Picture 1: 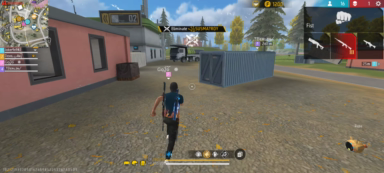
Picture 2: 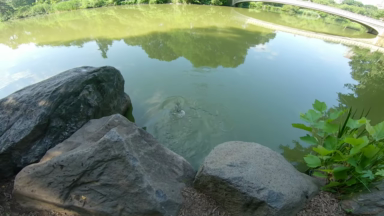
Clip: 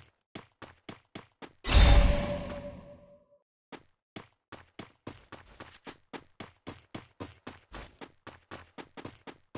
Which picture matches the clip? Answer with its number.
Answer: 1